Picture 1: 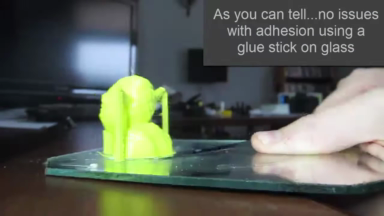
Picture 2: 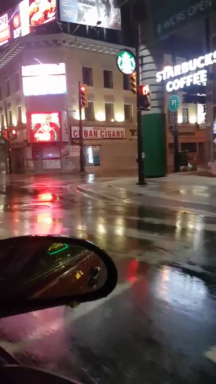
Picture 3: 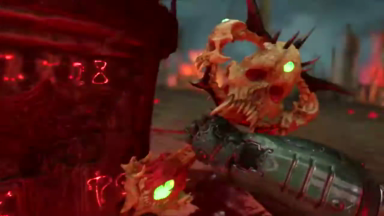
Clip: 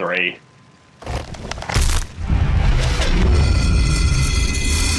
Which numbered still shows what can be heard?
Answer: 3